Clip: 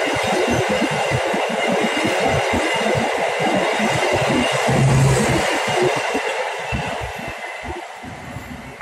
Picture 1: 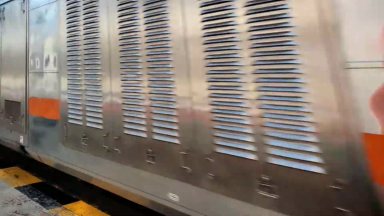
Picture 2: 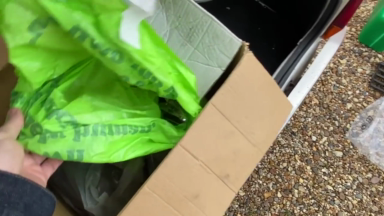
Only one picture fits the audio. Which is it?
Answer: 1